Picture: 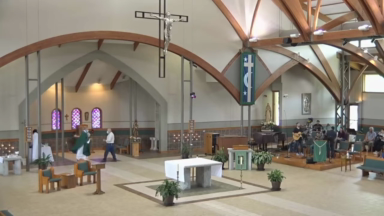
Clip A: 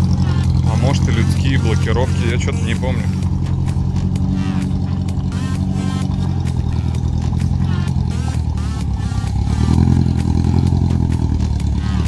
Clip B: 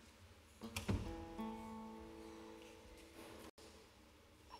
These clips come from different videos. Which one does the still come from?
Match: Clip B